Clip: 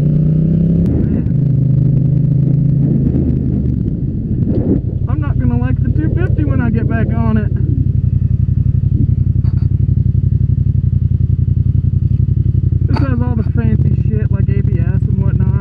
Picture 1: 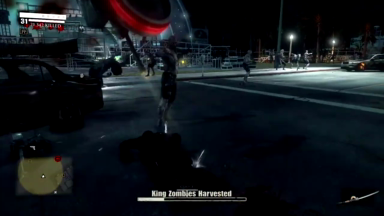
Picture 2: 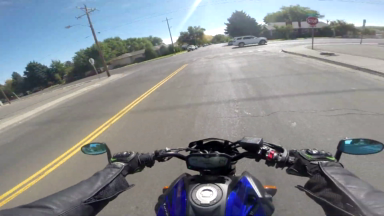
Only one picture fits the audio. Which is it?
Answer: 2